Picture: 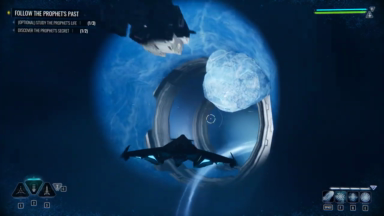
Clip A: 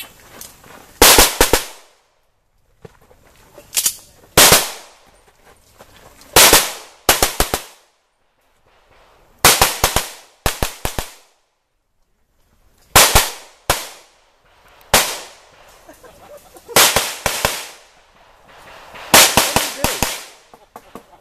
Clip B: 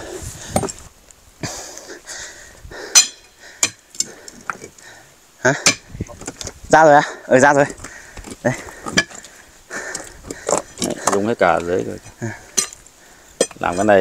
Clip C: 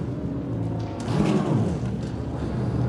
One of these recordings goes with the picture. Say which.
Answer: C